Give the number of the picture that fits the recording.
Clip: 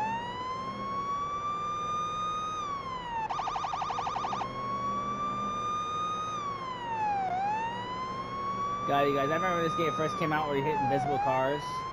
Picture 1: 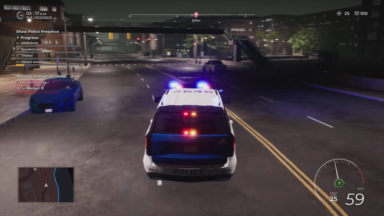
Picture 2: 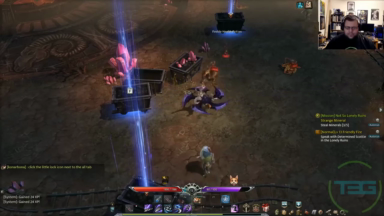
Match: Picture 1